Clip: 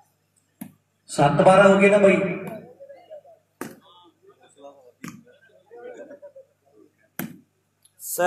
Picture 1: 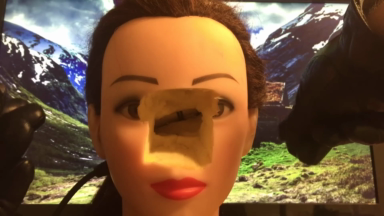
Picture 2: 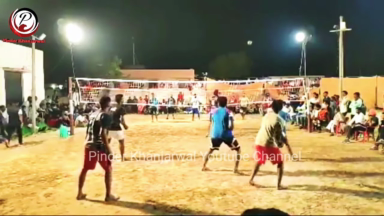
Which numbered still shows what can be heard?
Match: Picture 2